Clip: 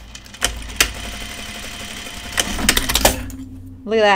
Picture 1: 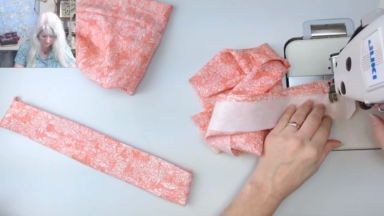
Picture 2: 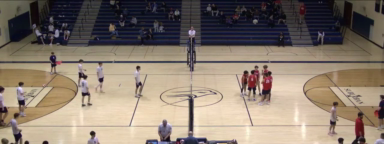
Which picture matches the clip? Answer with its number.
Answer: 1